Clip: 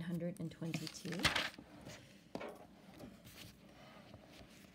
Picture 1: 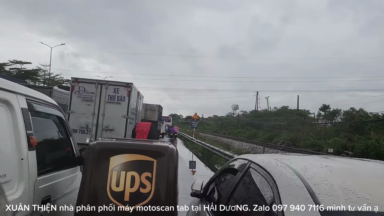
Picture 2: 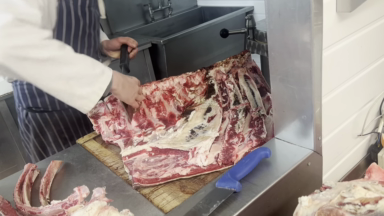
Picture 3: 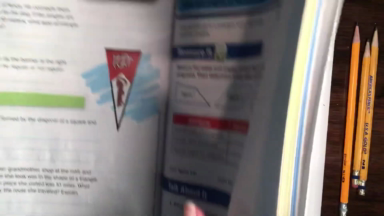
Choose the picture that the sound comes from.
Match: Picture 3